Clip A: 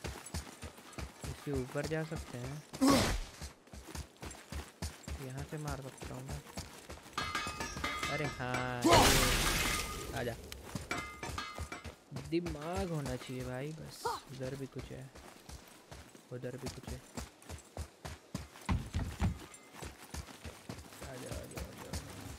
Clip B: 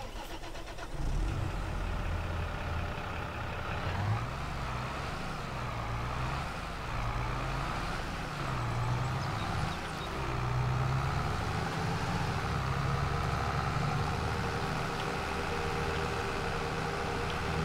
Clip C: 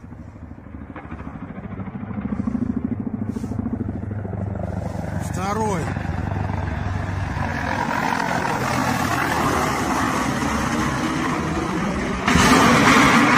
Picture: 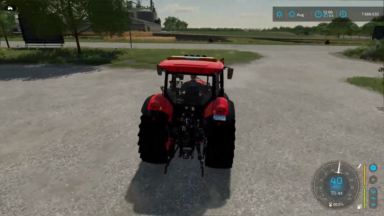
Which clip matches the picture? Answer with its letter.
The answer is B